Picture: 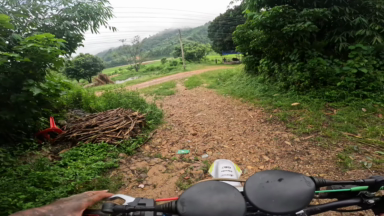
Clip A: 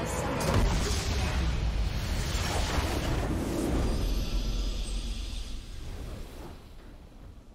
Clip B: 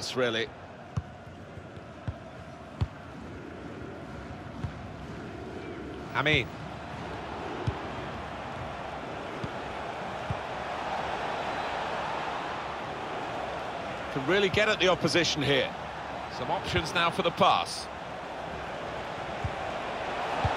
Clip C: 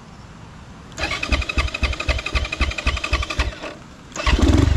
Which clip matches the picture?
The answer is C